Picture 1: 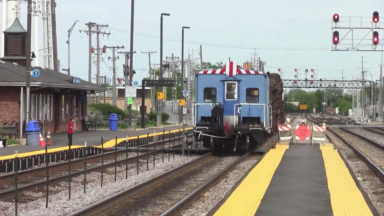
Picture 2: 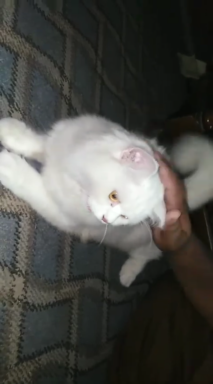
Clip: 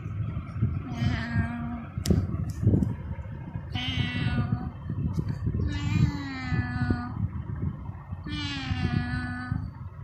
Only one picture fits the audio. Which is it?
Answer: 2